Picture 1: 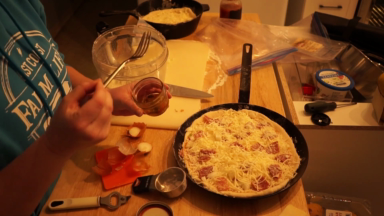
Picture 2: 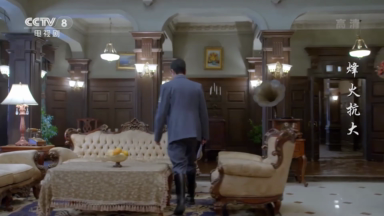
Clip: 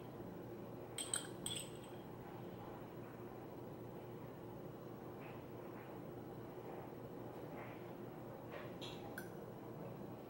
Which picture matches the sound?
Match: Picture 1